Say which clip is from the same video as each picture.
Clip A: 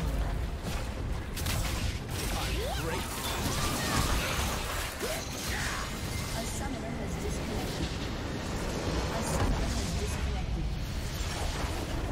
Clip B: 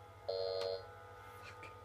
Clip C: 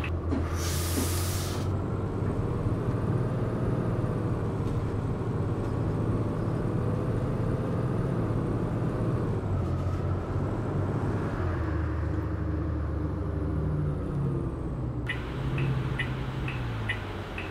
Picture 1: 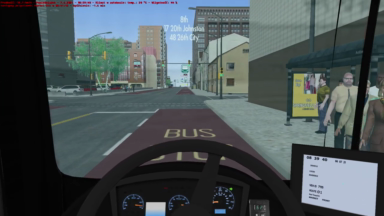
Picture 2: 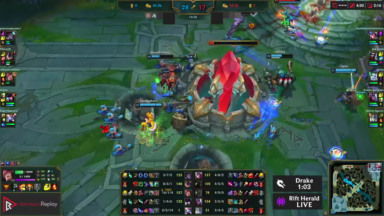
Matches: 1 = C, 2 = A